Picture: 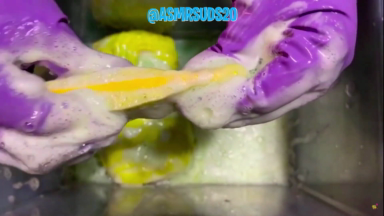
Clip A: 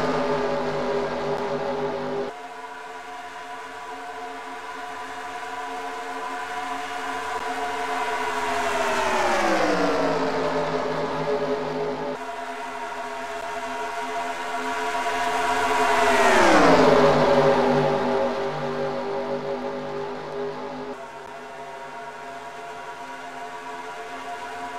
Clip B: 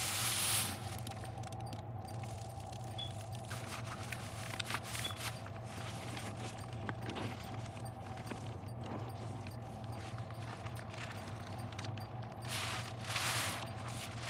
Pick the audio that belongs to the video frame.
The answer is B